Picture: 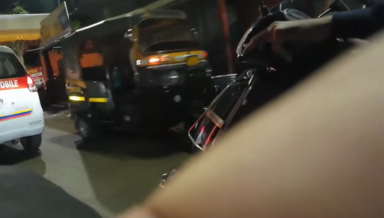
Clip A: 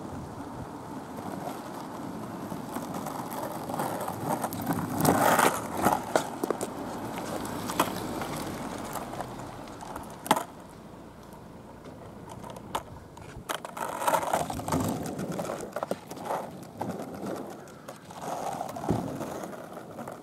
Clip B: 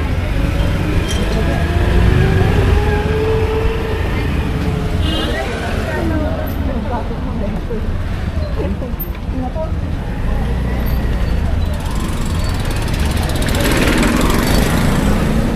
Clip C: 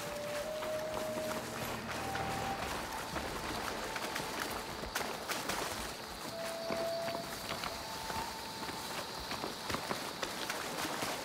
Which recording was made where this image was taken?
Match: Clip B